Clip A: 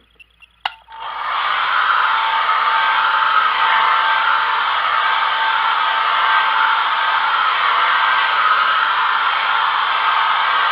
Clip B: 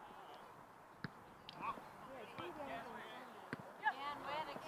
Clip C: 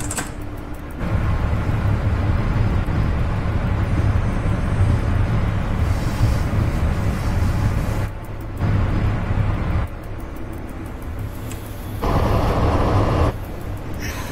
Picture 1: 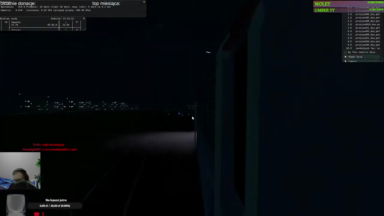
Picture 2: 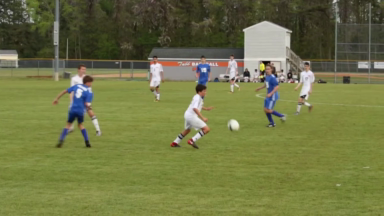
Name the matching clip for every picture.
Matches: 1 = C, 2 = B